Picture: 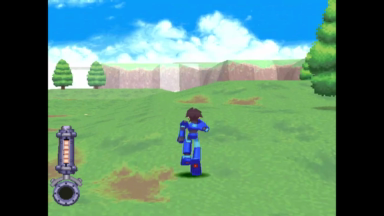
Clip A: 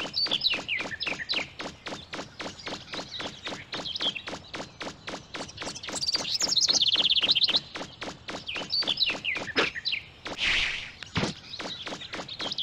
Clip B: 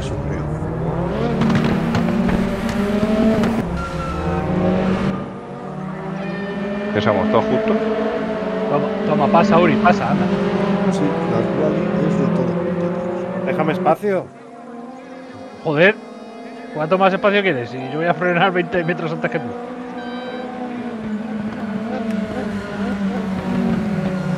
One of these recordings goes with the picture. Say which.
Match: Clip A